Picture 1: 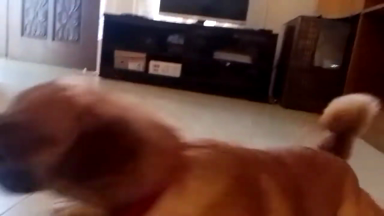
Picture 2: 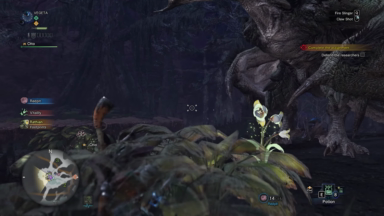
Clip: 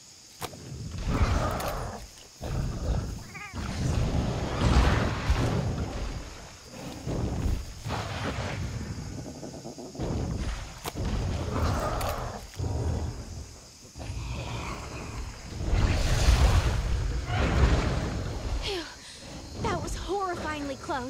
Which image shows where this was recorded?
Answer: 2